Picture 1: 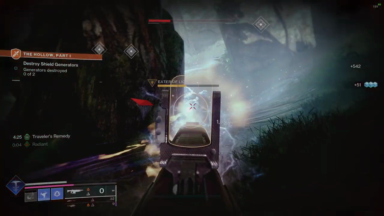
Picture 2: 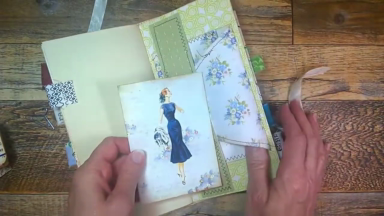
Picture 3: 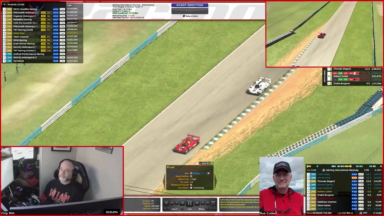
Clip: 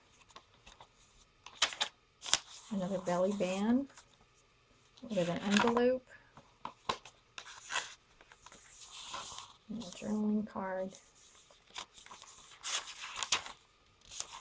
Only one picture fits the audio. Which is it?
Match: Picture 2